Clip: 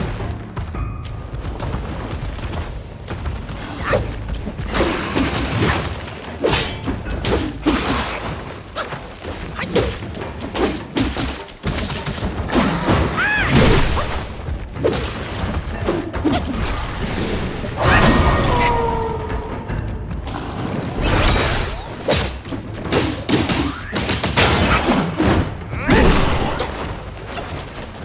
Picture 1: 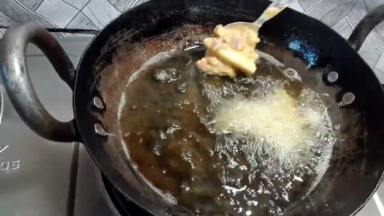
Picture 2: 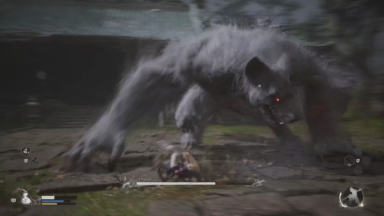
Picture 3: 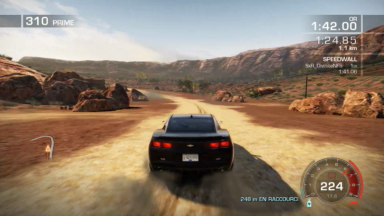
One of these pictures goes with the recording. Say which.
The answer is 2